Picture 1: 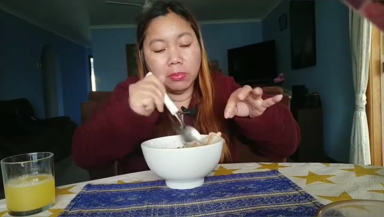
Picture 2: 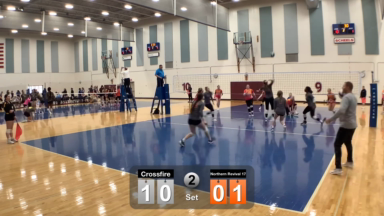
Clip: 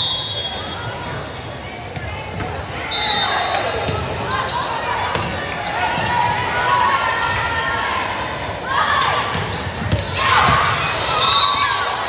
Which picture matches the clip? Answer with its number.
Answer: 2